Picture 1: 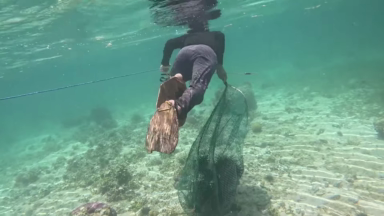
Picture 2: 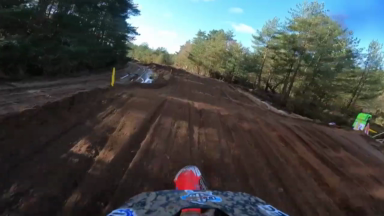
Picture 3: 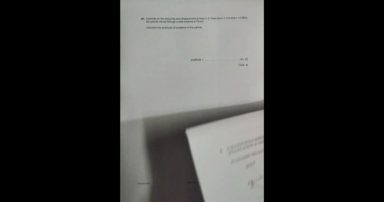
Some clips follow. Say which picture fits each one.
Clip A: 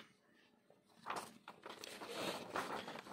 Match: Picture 3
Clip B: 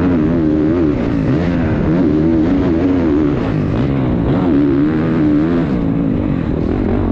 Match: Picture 2